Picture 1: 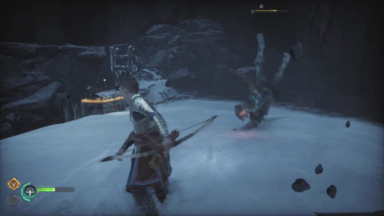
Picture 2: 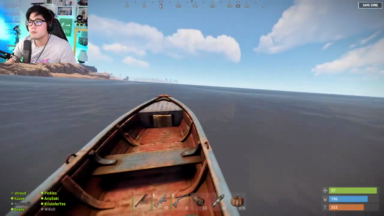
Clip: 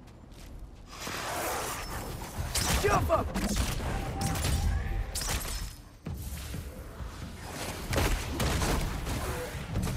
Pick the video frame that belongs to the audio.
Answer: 1